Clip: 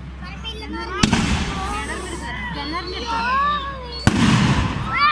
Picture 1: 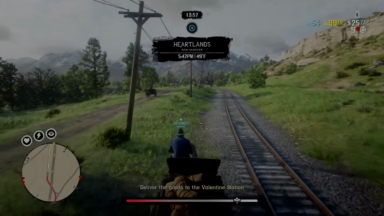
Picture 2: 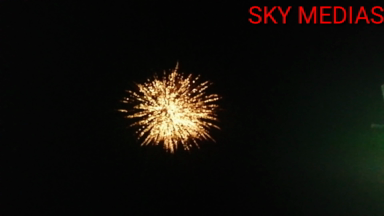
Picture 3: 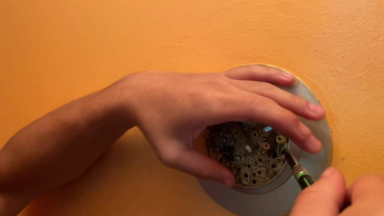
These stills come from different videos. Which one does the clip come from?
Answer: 2